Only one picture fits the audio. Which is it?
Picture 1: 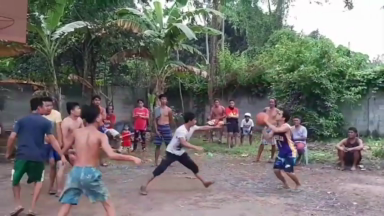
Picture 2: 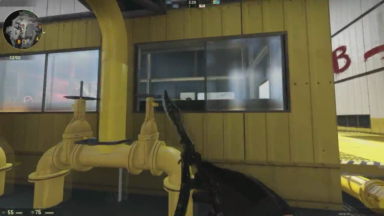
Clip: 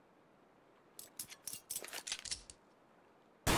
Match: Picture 2